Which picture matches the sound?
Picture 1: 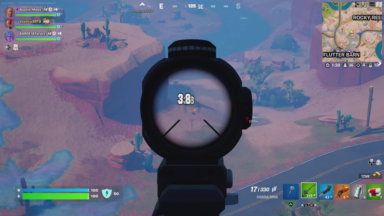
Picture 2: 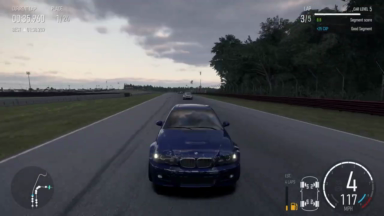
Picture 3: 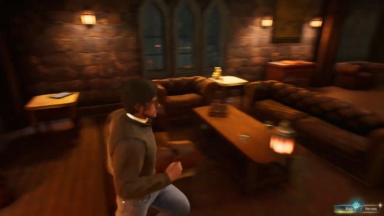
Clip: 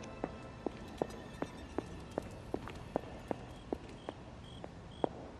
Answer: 3